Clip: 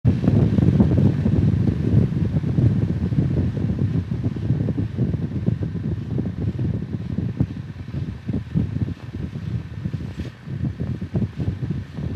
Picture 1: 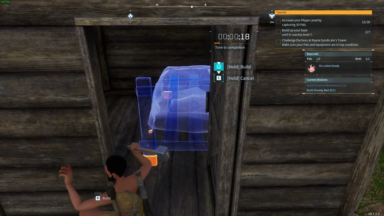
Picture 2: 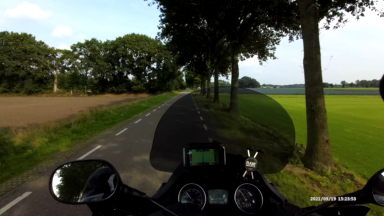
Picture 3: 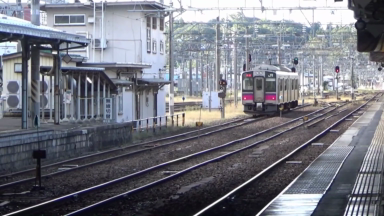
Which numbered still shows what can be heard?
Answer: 2